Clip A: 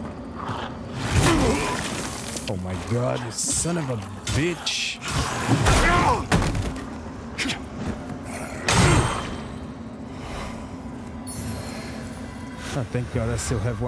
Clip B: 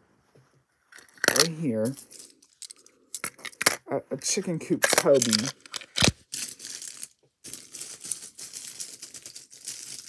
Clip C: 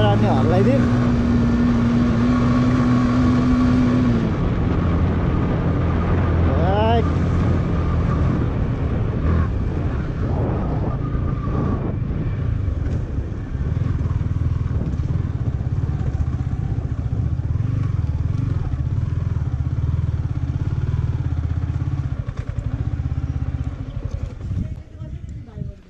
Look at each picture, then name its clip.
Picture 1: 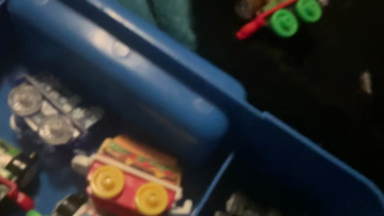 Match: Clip B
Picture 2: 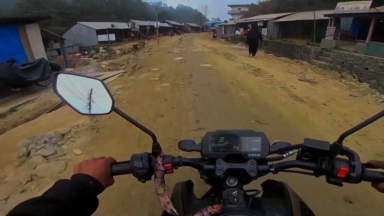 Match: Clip C